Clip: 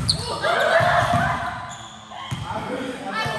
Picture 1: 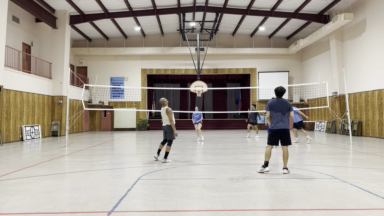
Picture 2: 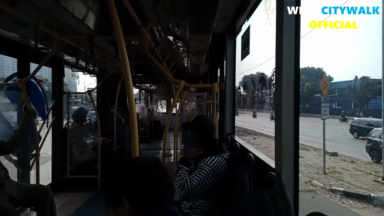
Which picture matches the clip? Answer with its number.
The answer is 1